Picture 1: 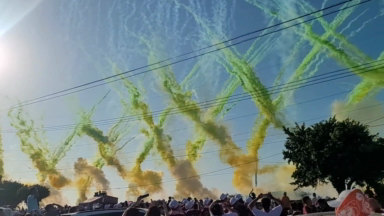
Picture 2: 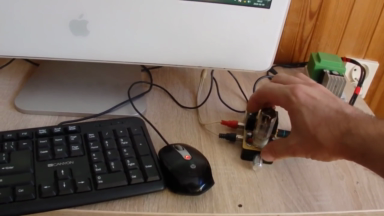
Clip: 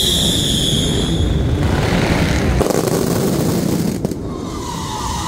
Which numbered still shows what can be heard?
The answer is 1